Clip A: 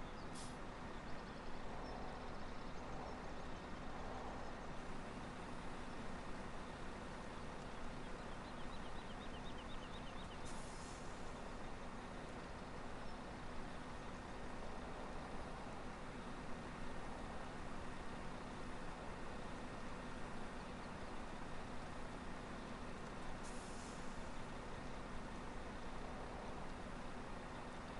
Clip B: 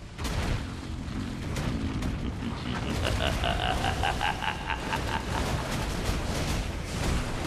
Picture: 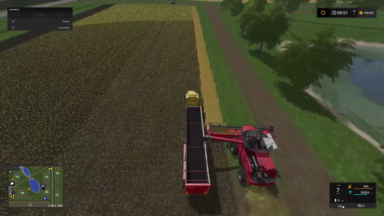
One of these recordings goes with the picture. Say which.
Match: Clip A